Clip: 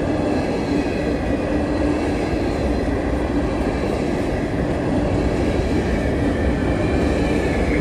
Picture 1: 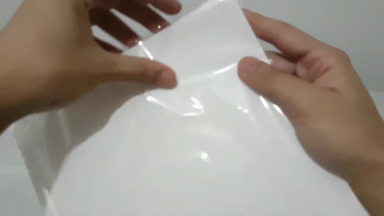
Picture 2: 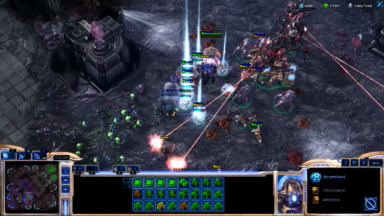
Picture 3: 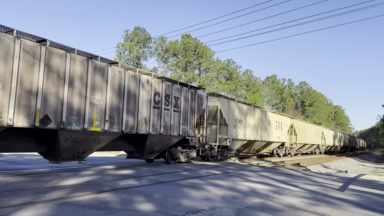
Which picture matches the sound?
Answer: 3